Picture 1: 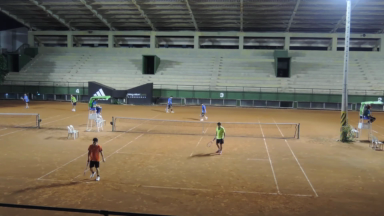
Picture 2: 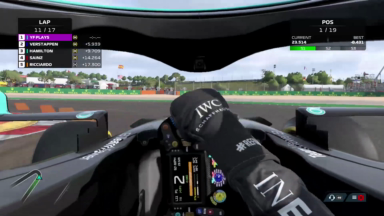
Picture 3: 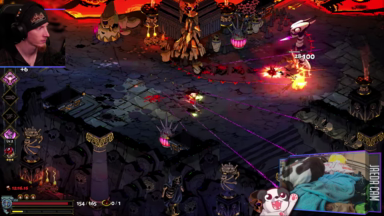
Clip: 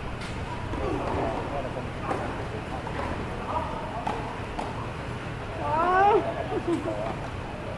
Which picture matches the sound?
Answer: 1